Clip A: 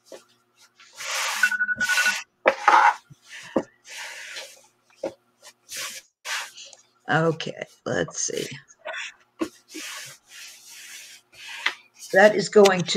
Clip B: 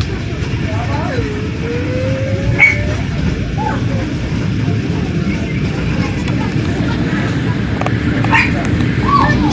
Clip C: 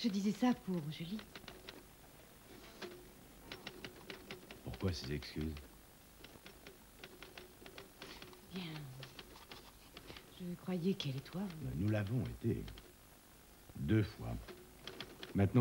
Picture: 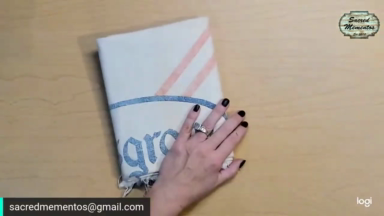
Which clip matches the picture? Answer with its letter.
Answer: A